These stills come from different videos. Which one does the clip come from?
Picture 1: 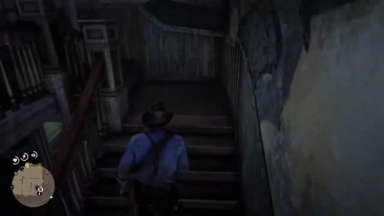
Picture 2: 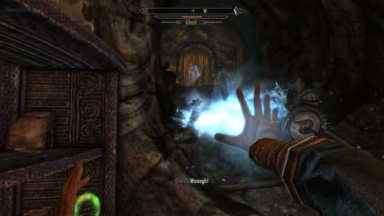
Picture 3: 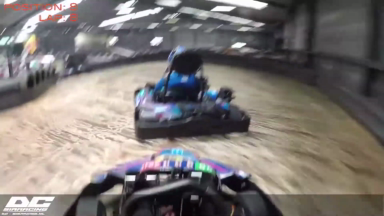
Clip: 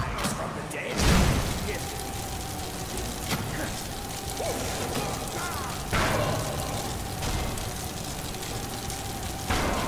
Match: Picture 2